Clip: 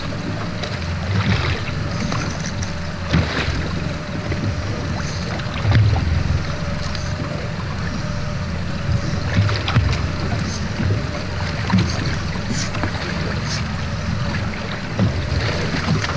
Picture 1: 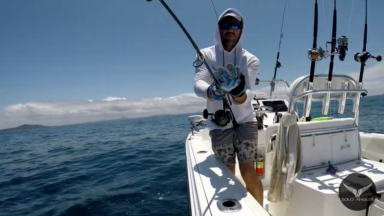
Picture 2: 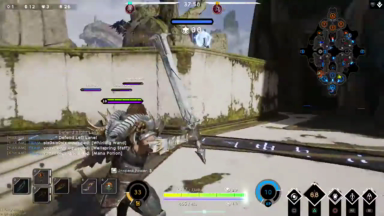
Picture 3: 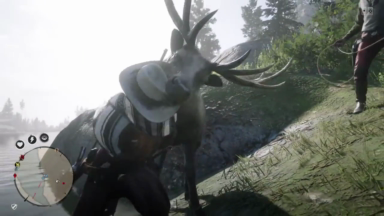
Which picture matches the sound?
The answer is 1